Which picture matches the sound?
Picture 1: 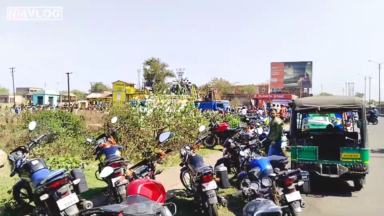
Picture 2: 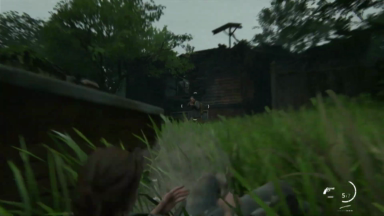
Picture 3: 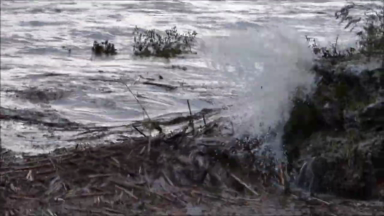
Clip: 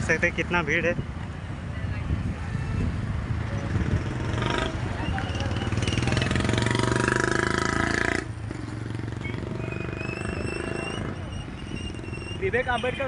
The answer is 1